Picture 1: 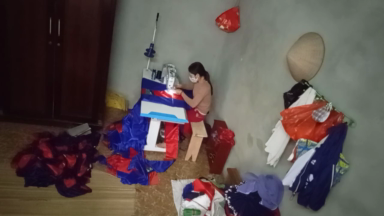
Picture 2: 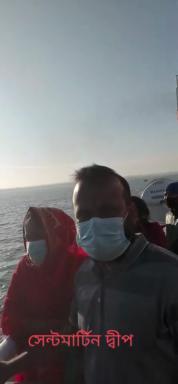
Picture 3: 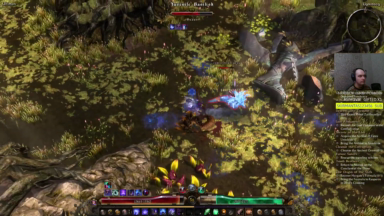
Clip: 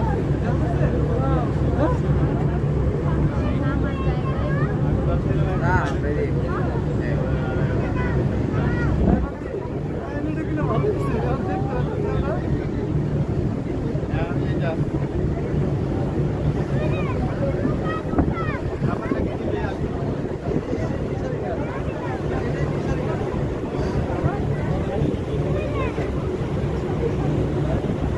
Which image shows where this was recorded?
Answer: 2